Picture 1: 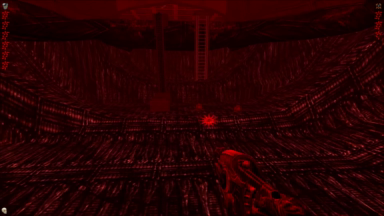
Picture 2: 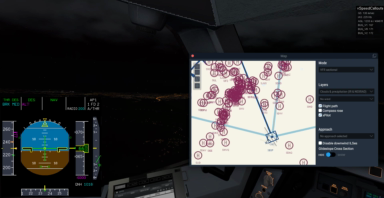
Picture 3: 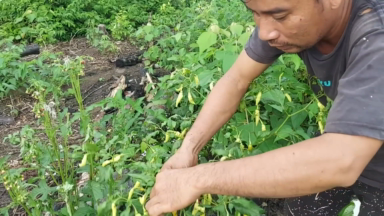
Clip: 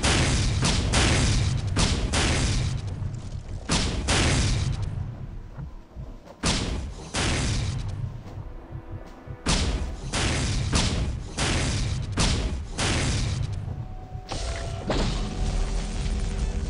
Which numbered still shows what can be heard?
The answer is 1